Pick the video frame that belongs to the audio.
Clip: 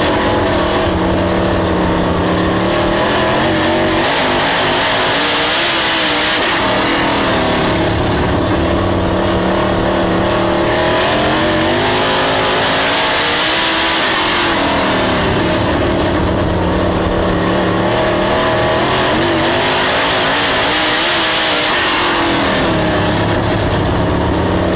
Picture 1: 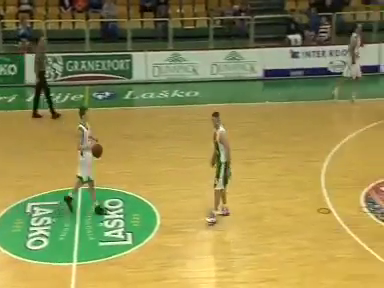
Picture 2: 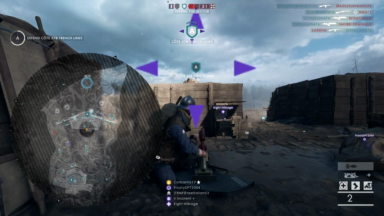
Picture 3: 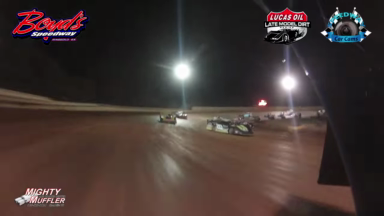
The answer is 3